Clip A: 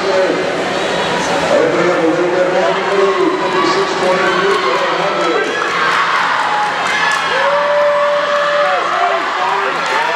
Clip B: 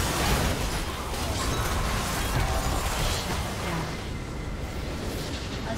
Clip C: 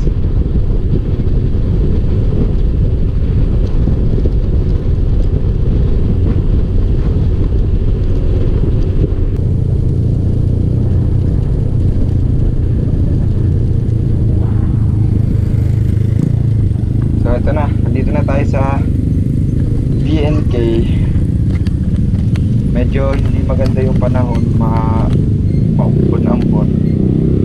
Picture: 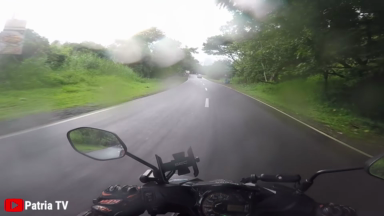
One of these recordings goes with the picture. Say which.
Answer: C